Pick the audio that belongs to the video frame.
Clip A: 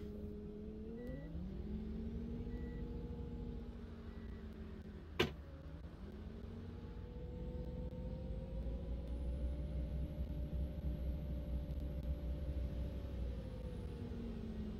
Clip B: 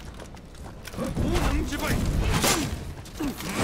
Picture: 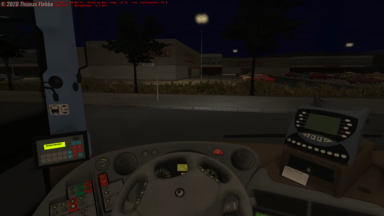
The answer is A